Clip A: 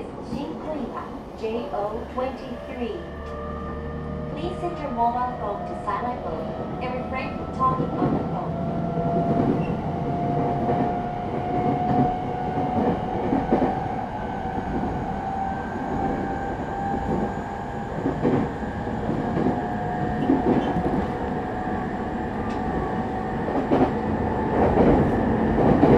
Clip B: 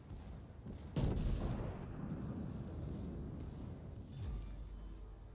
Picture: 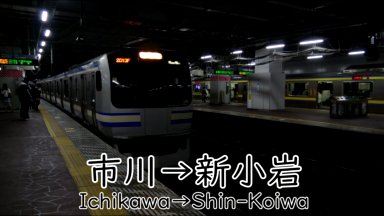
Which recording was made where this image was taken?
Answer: A